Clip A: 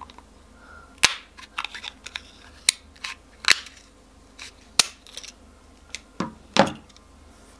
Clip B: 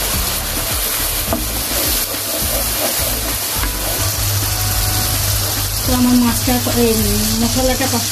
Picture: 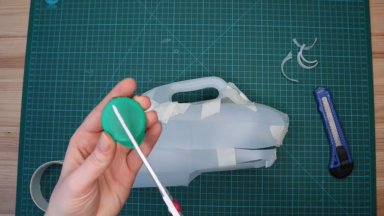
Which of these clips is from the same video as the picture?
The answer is A